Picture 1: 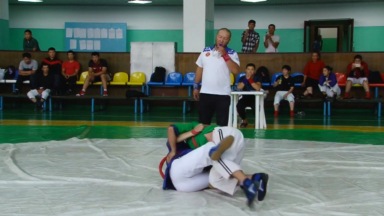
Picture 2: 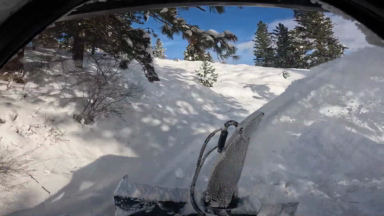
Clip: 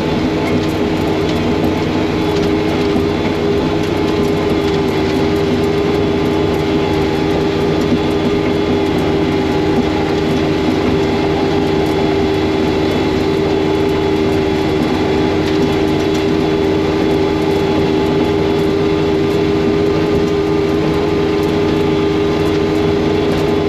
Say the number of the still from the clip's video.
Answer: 2